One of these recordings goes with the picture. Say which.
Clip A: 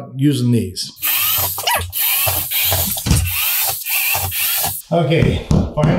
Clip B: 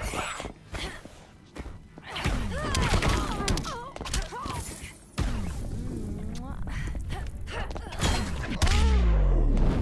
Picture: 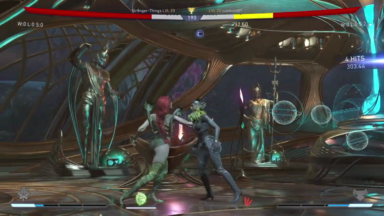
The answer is B